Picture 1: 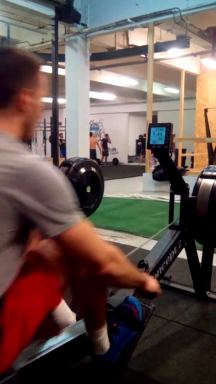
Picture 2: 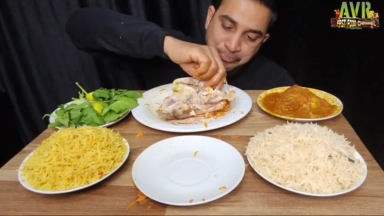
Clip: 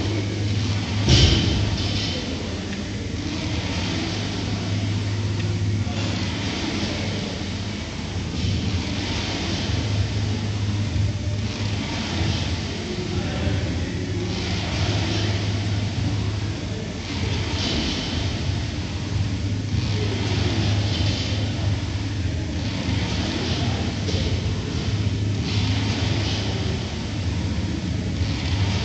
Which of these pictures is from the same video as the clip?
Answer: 1